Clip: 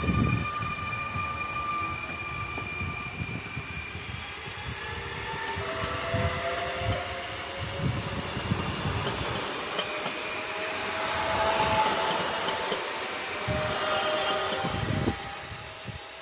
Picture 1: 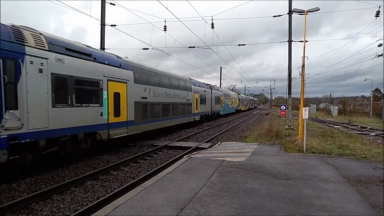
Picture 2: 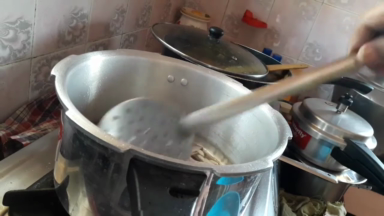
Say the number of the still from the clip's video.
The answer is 1